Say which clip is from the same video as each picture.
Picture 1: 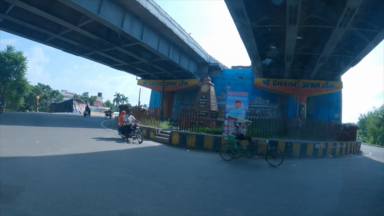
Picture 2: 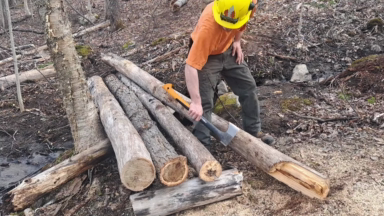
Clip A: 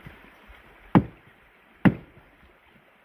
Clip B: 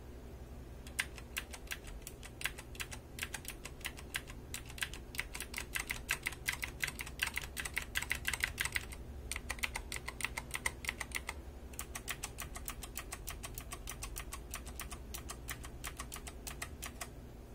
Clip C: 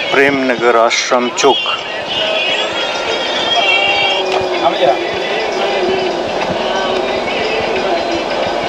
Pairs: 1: C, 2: A